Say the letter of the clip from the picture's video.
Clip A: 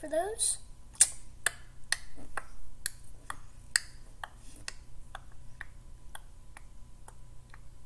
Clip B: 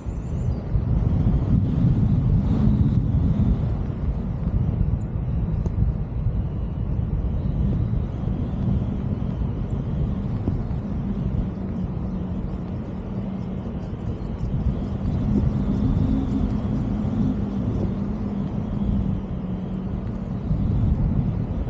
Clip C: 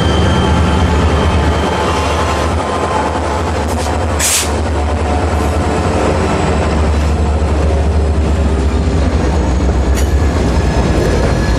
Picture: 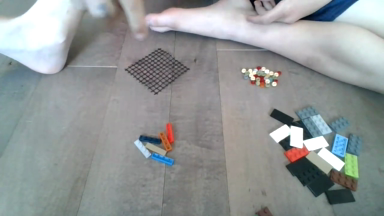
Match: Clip A